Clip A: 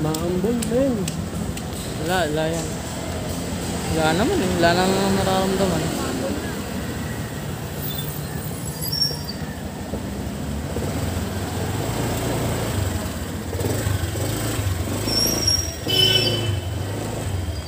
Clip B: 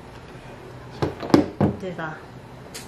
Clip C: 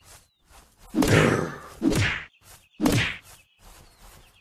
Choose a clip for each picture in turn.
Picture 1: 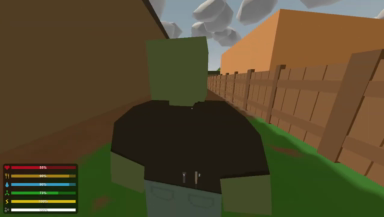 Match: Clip C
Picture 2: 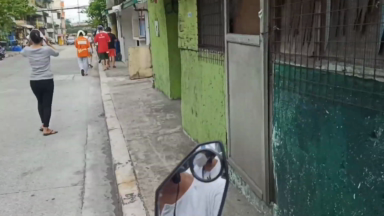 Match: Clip A